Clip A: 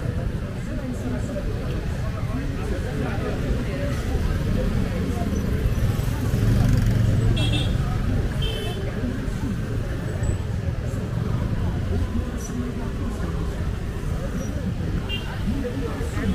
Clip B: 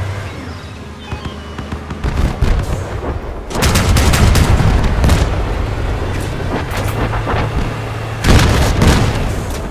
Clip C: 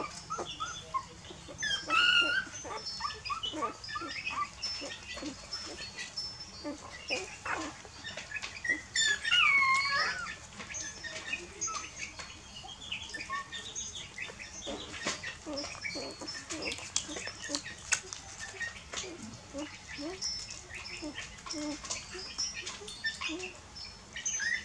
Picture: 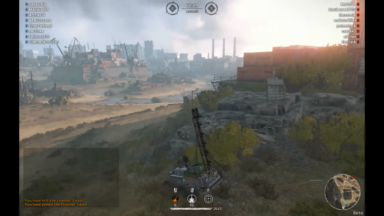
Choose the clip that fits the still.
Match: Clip B